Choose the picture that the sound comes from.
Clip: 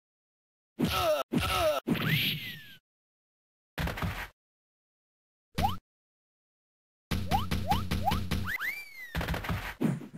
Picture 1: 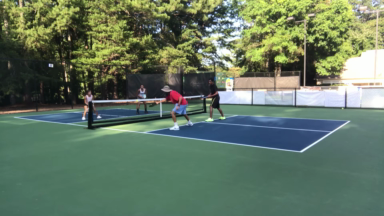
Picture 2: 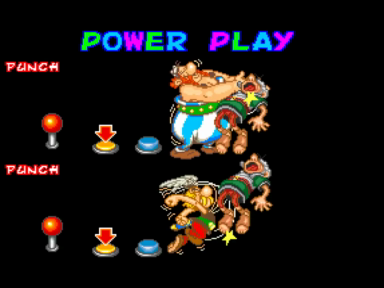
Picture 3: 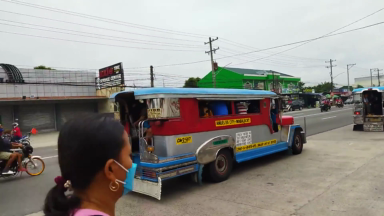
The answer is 2